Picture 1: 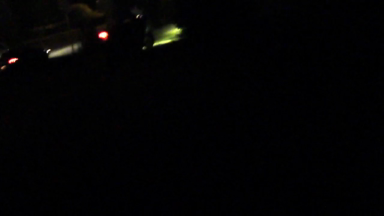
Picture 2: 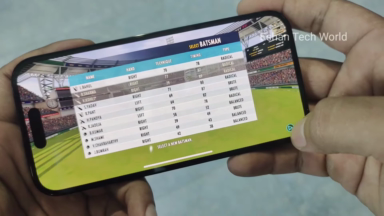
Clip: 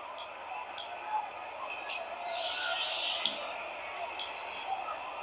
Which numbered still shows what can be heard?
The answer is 2